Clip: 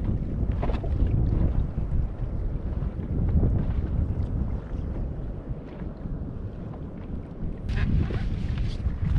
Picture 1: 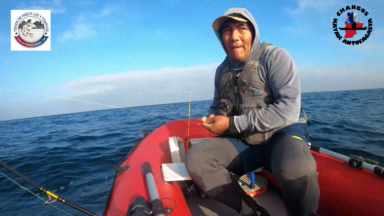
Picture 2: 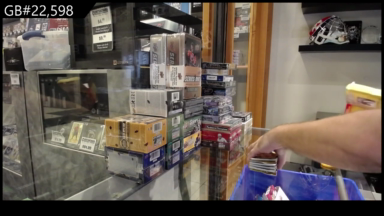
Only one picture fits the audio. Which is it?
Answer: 1